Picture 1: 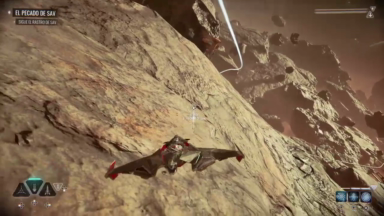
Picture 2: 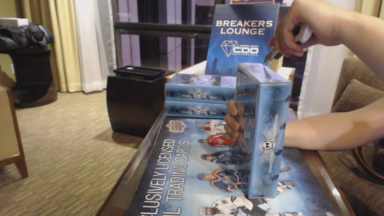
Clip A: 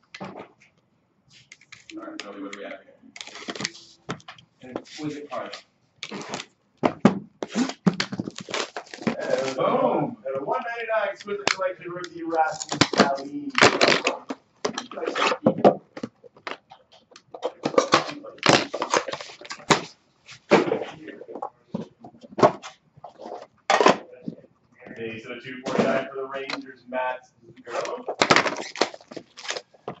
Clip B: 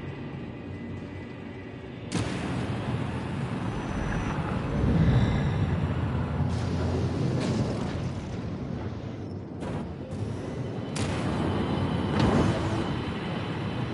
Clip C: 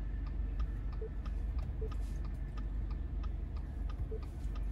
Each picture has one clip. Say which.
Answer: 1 B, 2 A